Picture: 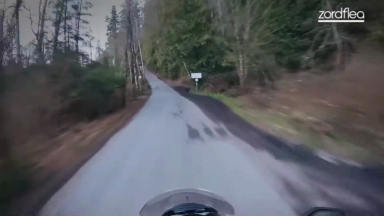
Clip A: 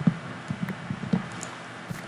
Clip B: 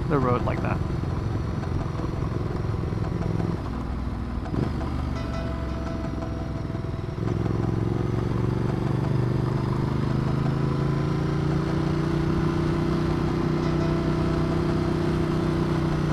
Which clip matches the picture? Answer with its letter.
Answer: B